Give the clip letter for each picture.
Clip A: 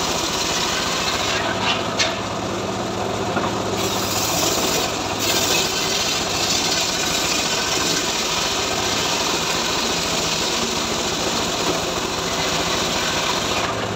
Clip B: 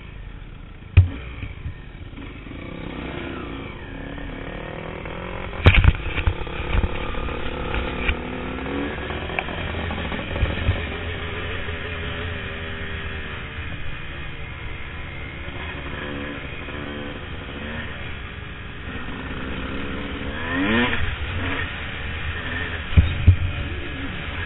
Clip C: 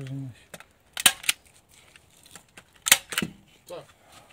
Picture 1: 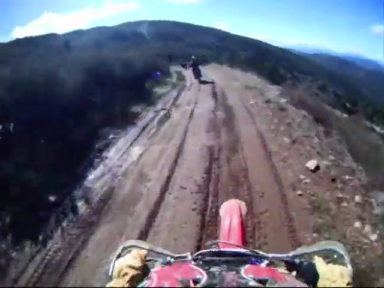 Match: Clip B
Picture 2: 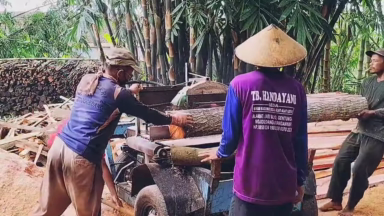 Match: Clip A